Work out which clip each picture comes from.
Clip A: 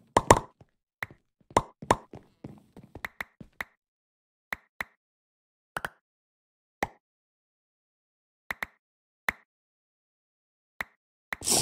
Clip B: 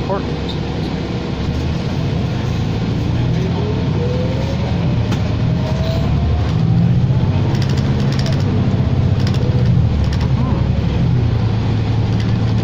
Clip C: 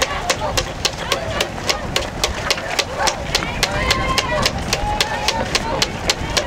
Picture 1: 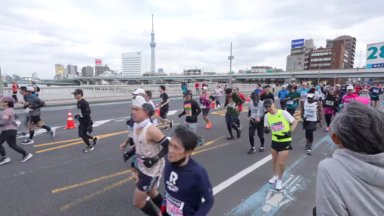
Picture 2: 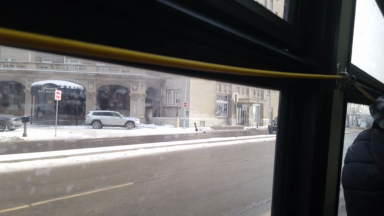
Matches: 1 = C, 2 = B